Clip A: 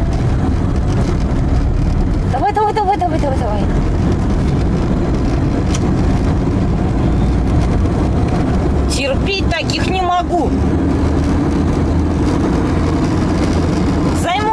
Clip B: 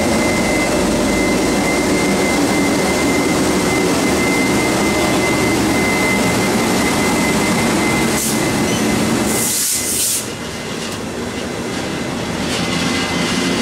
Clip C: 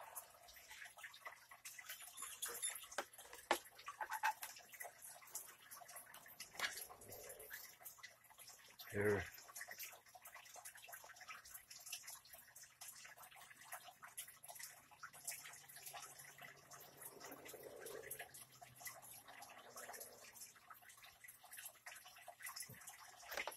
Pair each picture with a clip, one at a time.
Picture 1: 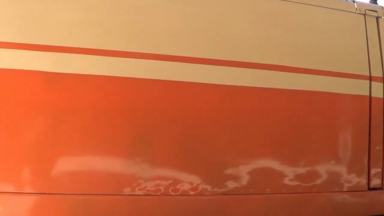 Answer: B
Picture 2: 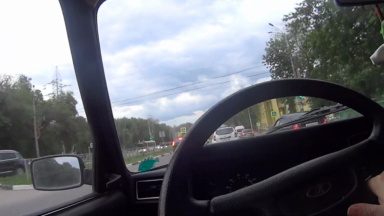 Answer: A